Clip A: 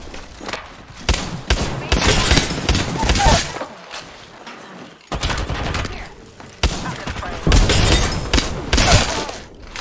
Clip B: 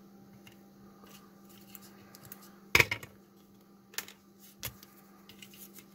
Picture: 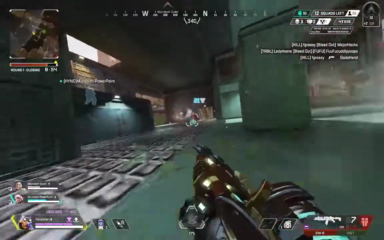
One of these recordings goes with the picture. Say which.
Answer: A